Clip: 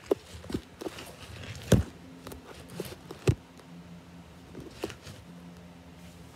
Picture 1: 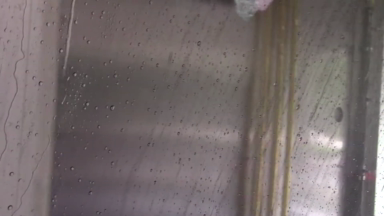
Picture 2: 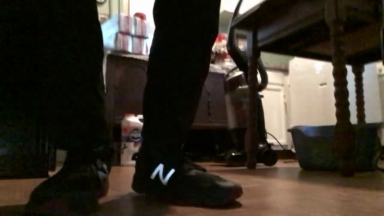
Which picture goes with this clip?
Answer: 2